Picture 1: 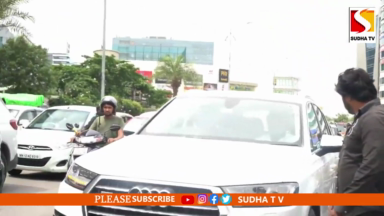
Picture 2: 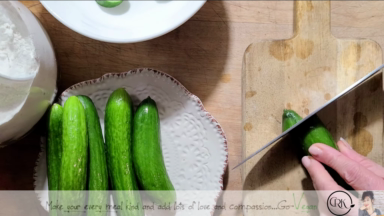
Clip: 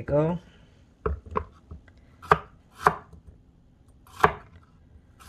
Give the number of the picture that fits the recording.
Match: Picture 2